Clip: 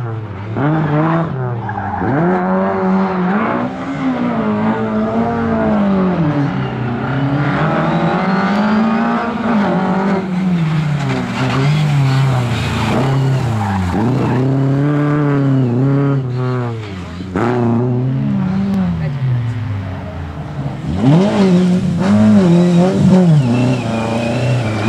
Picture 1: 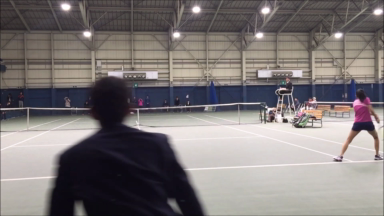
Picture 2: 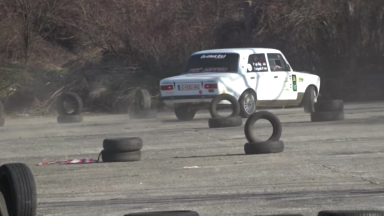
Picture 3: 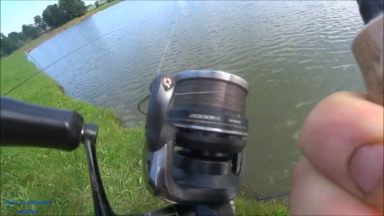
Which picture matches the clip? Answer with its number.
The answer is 2